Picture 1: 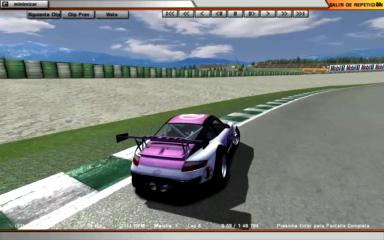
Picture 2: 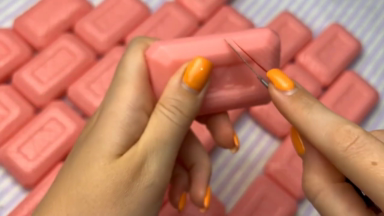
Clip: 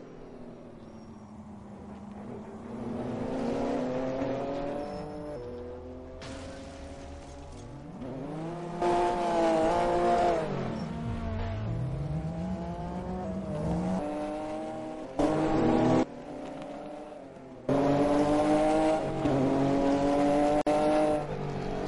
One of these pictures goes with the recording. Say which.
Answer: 1